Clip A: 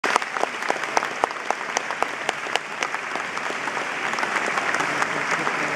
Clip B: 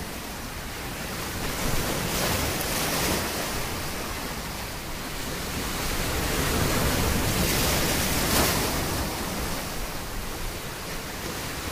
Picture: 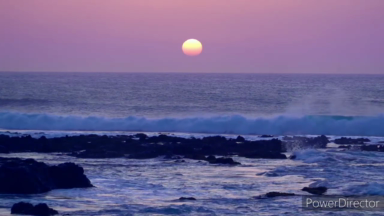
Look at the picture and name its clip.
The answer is B